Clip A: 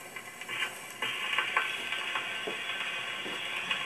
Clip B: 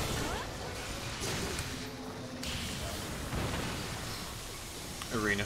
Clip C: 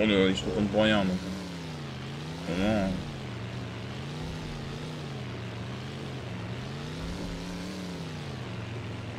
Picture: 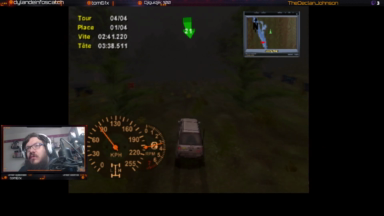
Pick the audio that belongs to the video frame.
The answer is C